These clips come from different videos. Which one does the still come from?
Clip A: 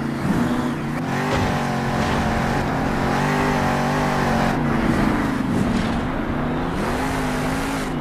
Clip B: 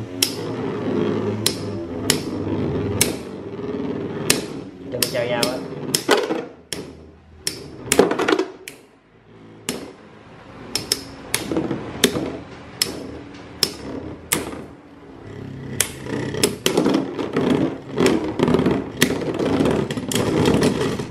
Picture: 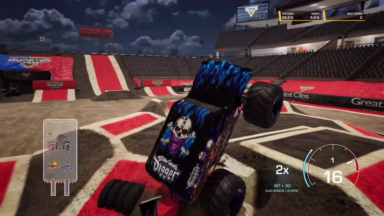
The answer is A